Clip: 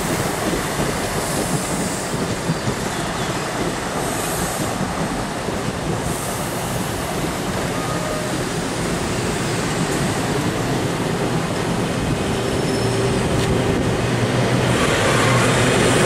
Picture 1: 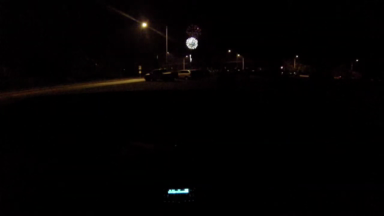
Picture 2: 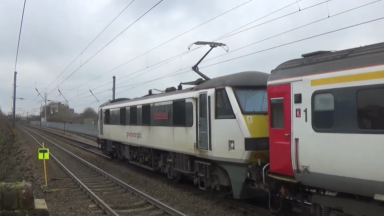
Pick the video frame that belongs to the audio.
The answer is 2